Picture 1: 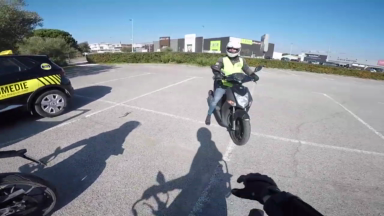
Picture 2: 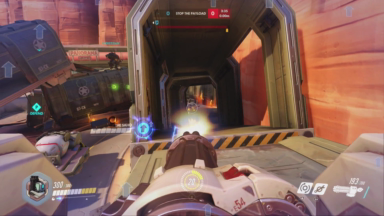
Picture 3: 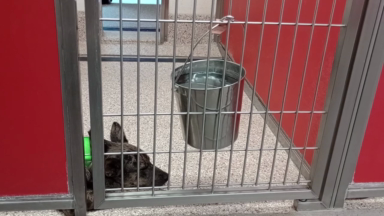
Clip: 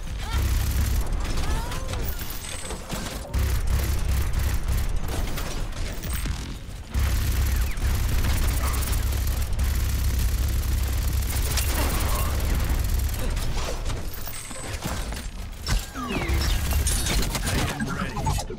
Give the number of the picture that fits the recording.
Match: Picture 2